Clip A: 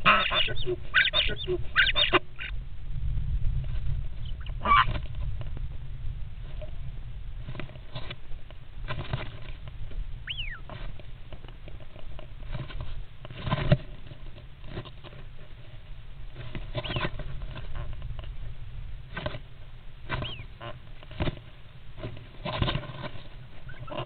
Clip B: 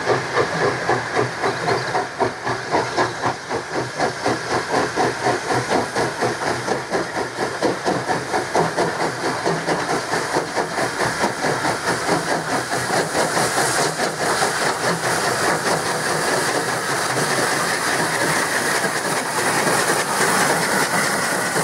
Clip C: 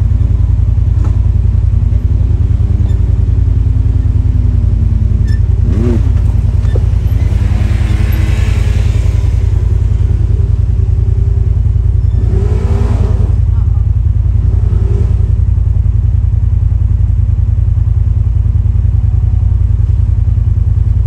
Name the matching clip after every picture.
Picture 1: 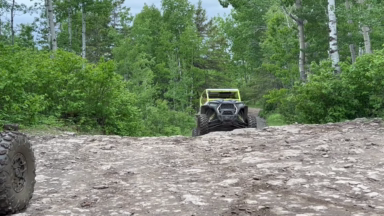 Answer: C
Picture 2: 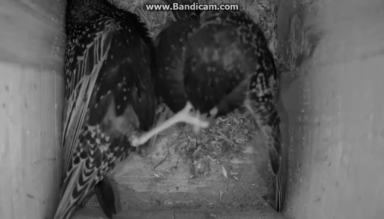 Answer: A